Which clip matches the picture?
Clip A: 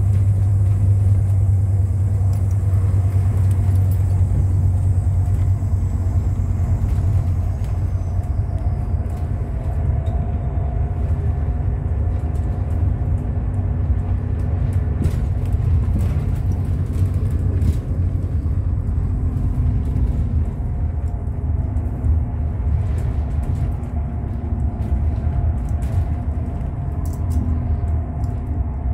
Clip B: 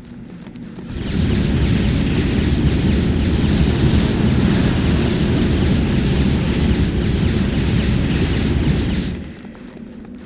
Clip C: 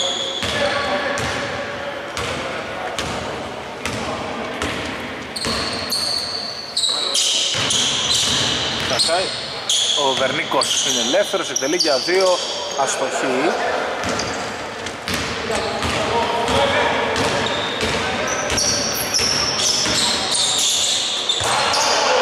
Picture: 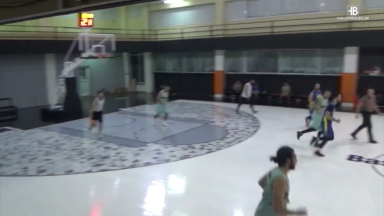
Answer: C